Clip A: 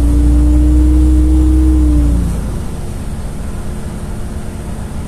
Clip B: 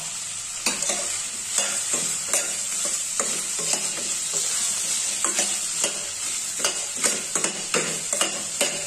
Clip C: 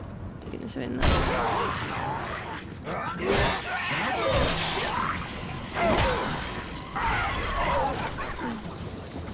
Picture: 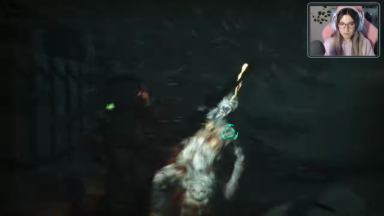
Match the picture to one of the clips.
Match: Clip C